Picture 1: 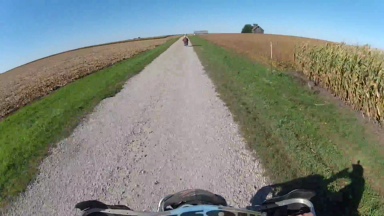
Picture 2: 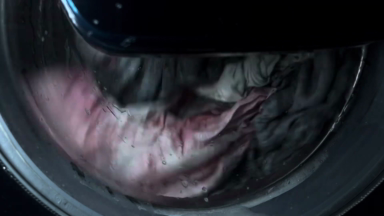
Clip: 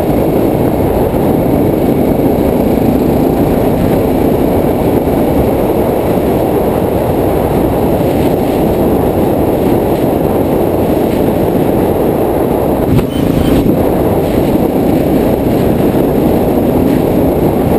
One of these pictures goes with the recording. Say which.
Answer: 1